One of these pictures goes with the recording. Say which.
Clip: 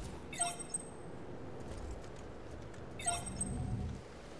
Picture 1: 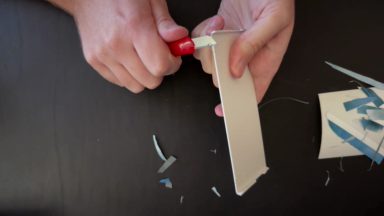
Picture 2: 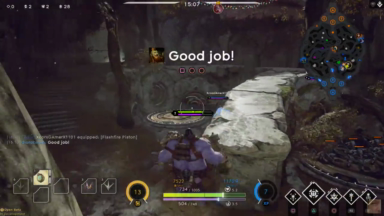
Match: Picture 2